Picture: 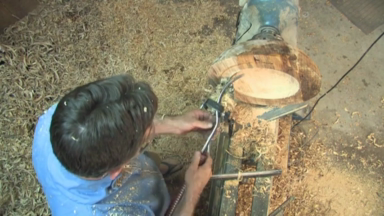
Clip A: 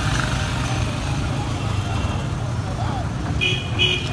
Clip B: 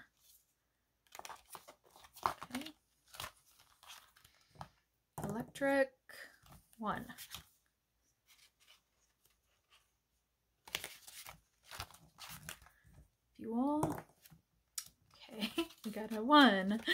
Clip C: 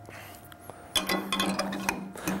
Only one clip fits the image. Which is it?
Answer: C